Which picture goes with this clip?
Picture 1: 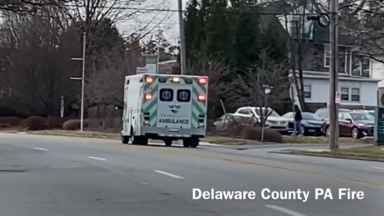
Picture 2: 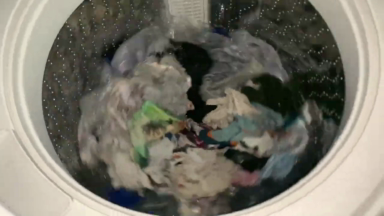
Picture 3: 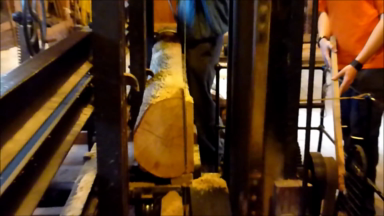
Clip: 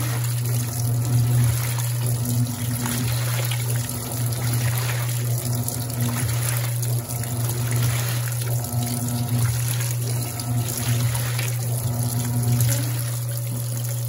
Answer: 2